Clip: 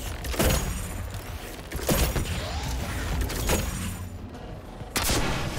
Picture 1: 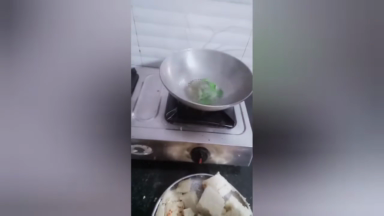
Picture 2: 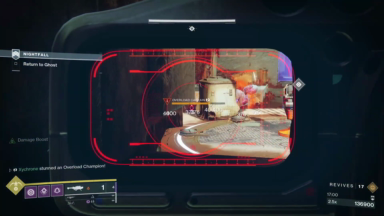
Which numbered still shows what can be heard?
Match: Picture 2